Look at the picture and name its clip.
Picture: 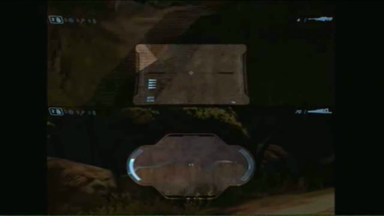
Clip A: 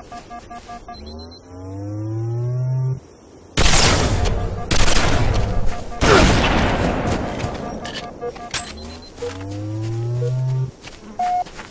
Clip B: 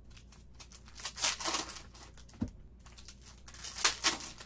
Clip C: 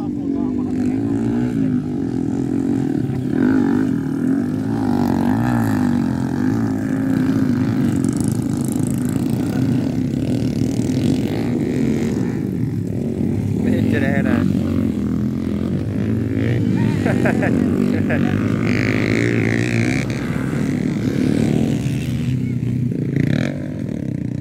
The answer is A